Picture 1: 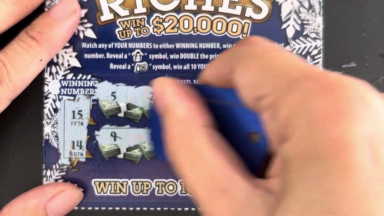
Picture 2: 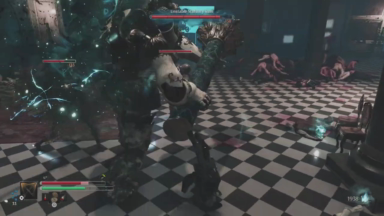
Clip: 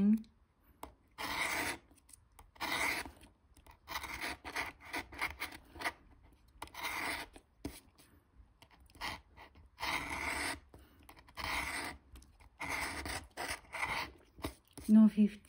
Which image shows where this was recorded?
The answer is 1